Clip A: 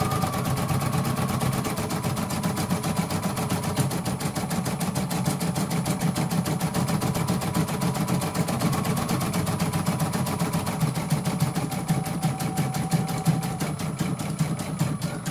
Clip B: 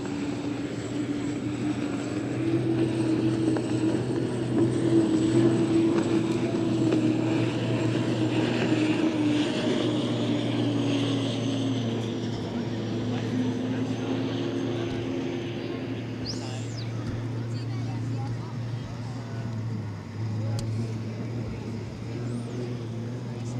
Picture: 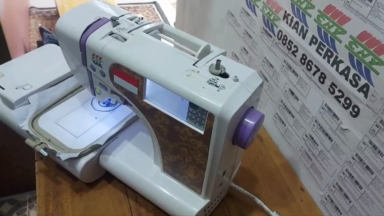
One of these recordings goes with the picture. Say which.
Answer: A